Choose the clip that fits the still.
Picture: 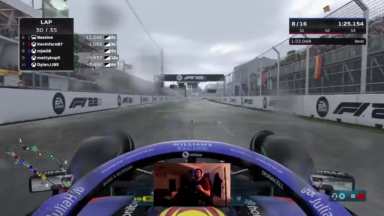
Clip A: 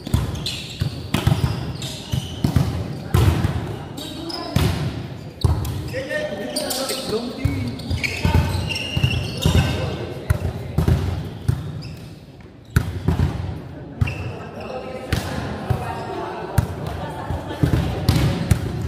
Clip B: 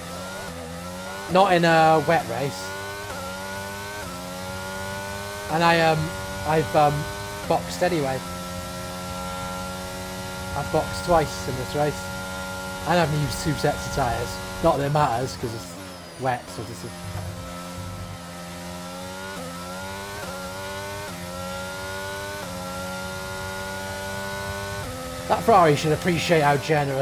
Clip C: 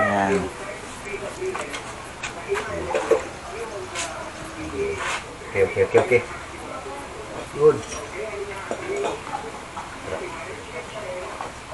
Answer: B